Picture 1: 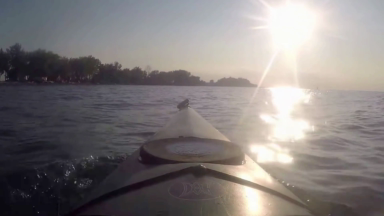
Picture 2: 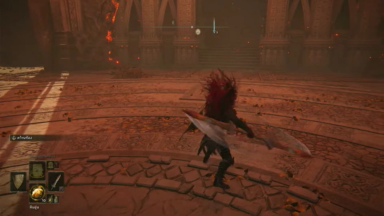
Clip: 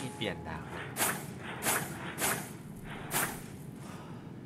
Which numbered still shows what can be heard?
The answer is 2